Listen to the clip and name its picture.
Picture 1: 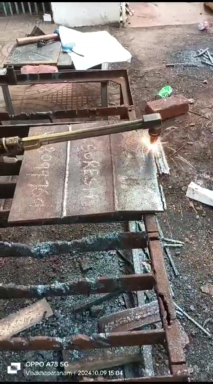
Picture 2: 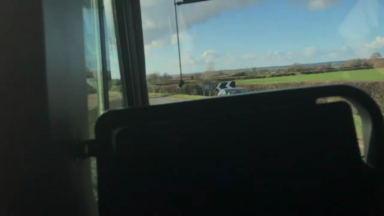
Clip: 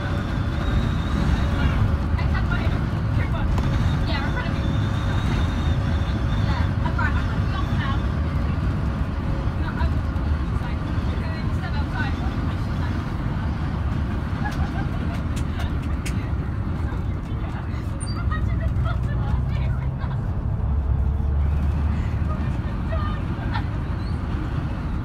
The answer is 2